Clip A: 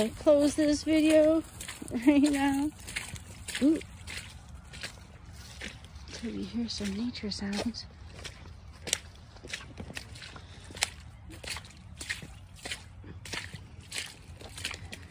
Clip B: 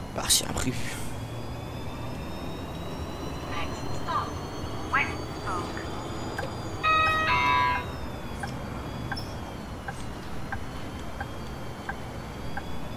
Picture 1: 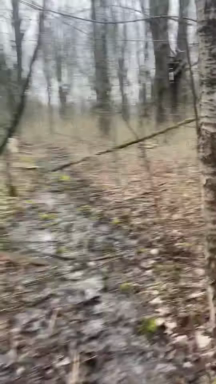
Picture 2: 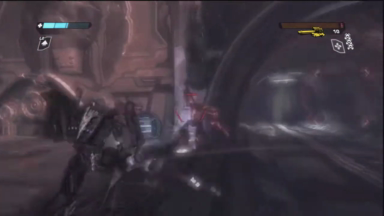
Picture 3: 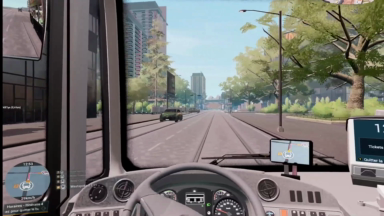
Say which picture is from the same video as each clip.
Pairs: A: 1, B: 3